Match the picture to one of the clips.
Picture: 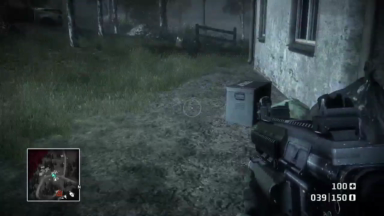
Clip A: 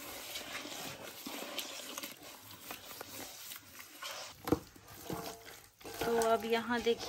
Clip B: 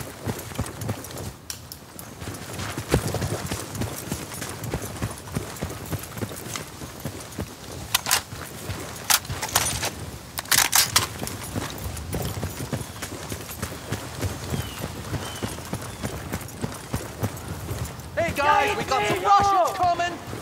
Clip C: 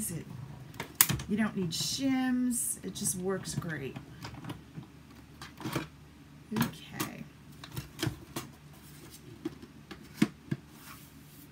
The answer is B